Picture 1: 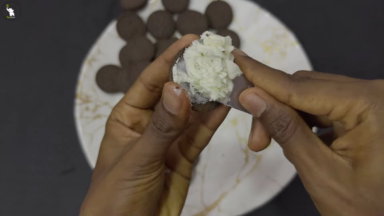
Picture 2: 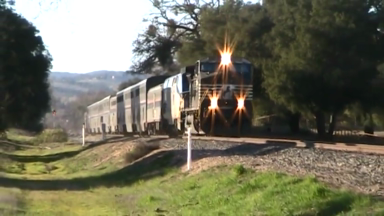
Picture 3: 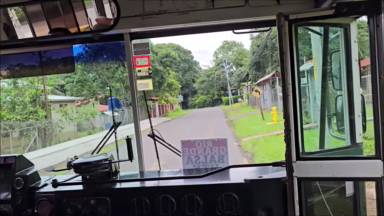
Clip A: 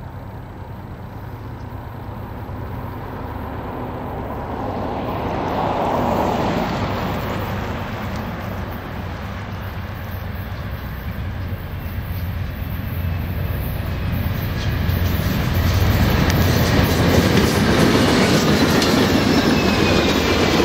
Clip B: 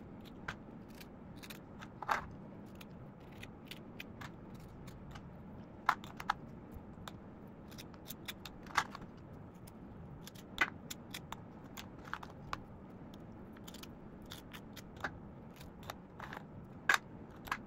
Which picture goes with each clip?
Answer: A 2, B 1